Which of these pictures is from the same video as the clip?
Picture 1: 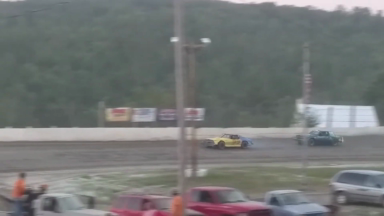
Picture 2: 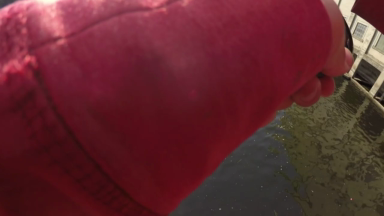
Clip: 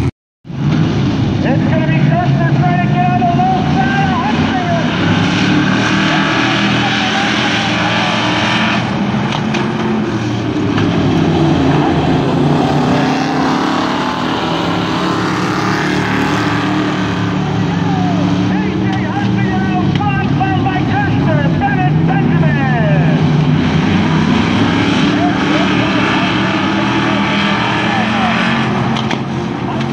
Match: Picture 1